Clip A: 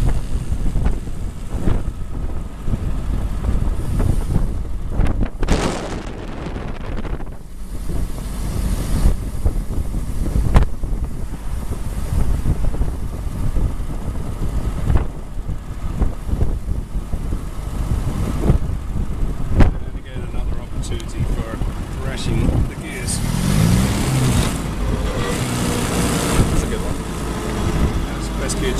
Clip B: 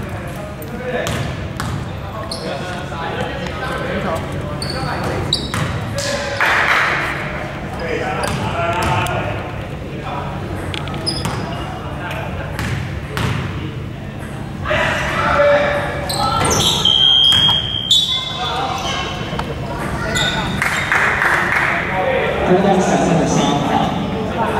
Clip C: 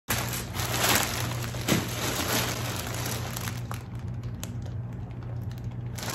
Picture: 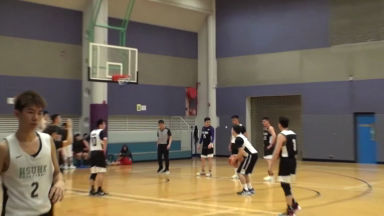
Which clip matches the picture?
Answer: B